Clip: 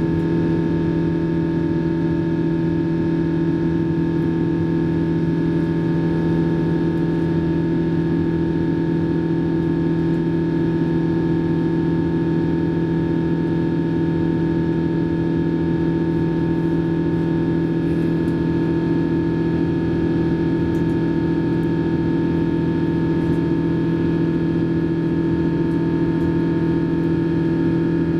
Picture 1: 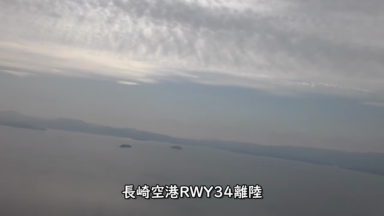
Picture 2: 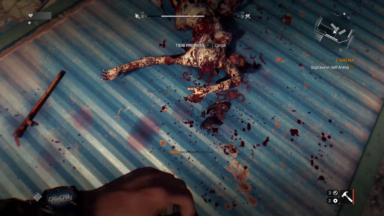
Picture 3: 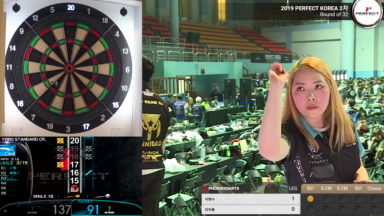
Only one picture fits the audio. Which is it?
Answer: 1